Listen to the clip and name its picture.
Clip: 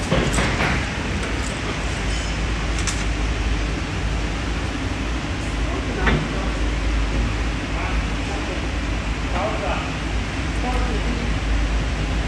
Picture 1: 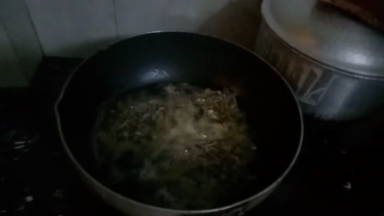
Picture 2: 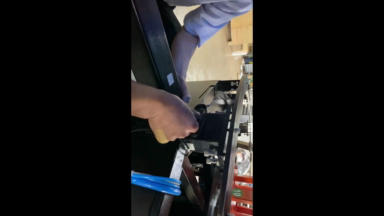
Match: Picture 2